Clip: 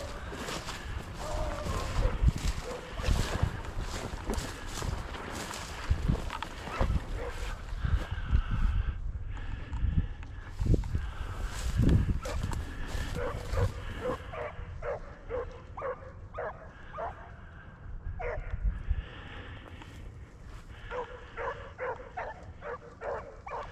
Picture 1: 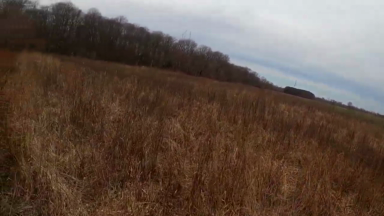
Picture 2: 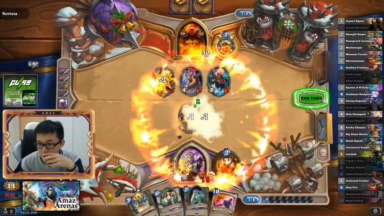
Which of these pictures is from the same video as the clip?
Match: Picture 1